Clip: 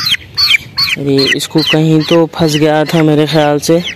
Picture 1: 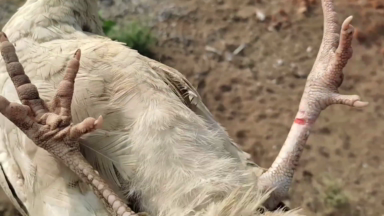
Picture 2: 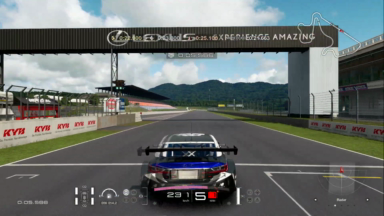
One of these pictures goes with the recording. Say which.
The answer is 1